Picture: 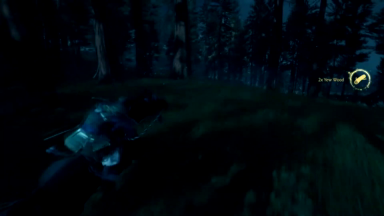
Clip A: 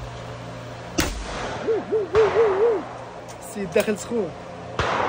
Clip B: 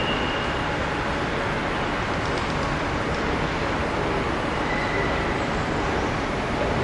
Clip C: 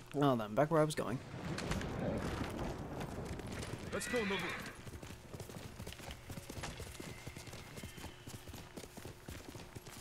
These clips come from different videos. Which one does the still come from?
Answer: C